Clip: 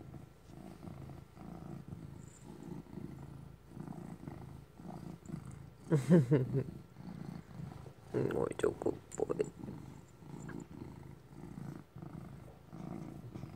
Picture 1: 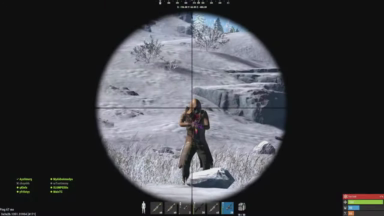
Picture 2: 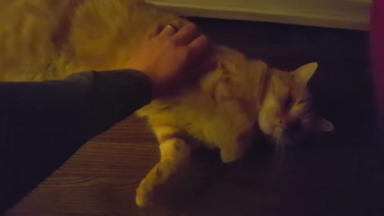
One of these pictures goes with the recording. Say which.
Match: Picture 2